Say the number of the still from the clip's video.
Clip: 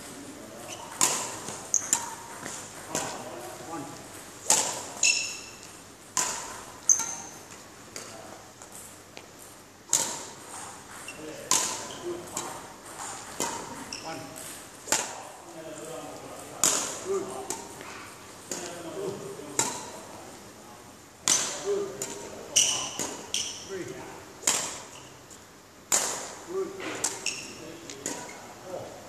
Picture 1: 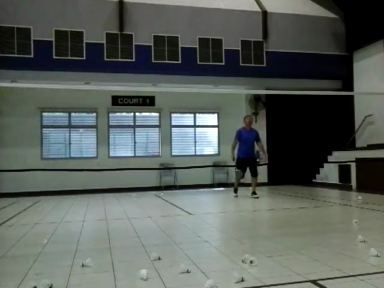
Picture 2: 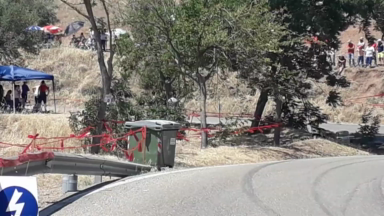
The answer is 1